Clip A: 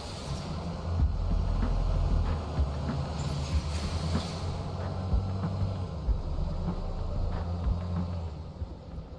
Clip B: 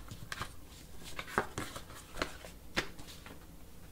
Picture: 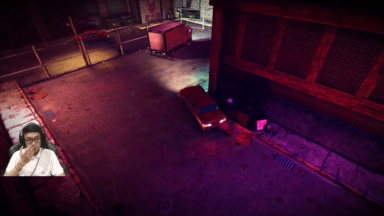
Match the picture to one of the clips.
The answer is A